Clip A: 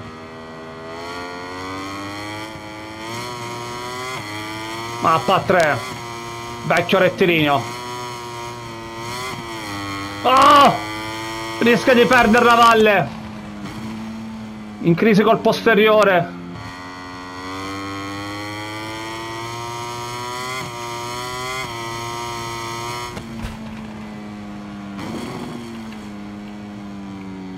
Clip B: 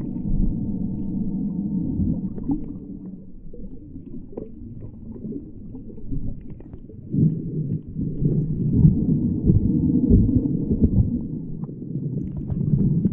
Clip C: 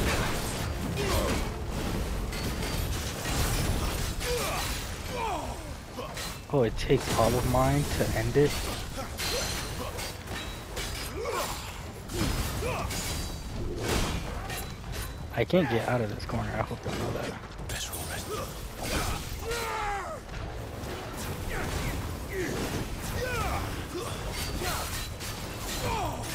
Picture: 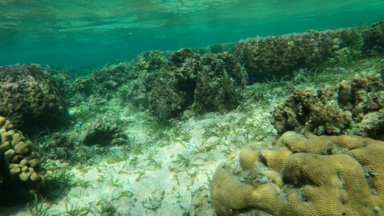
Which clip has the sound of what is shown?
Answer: B